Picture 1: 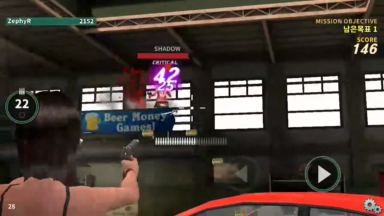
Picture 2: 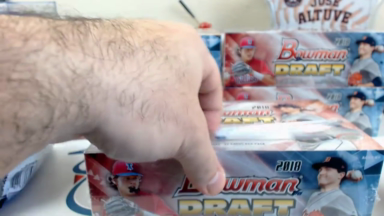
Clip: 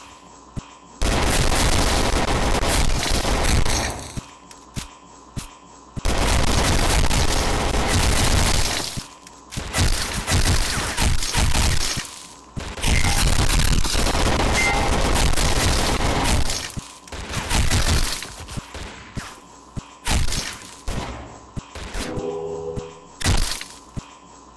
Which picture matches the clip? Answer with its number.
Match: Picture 1